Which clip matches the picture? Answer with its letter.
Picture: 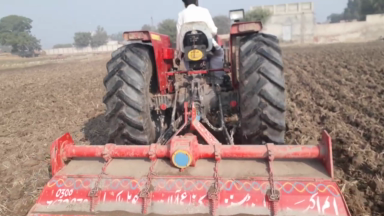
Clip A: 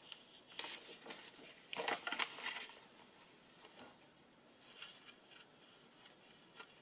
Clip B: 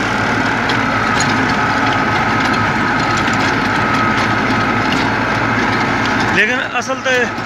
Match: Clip B